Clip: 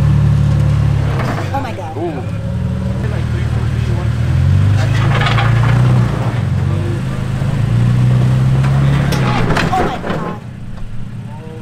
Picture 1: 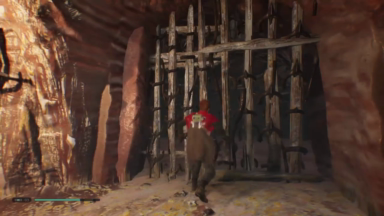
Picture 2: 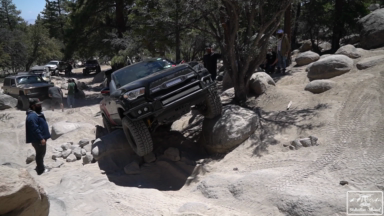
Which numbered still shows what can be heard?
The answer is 2